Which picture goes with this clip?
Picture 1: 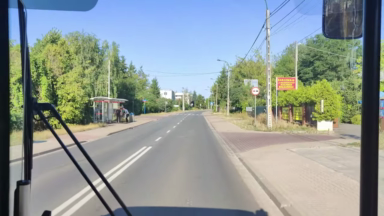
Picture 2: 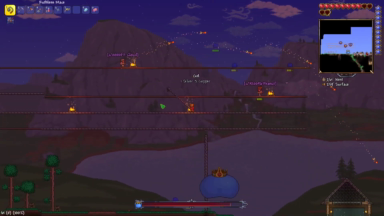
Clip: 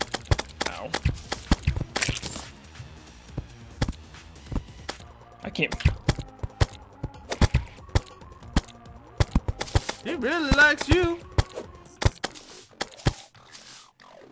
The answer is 2